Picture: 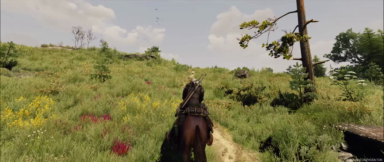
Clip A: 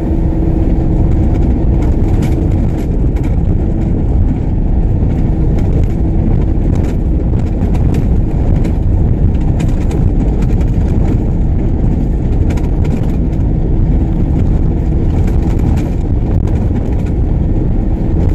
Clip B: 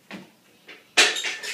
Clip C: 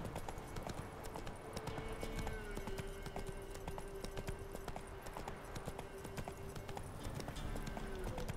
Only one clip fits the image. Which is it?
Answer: C